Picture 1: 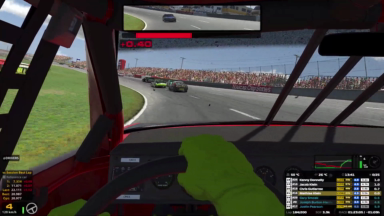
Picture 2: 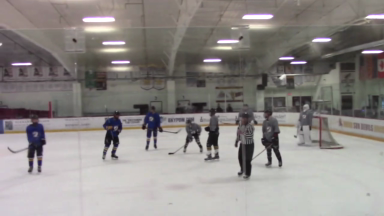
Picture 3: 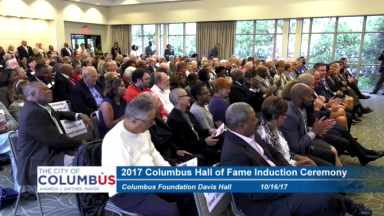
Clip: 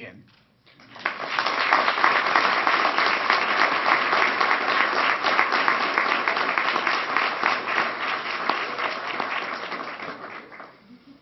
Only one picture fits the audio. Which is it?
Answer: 3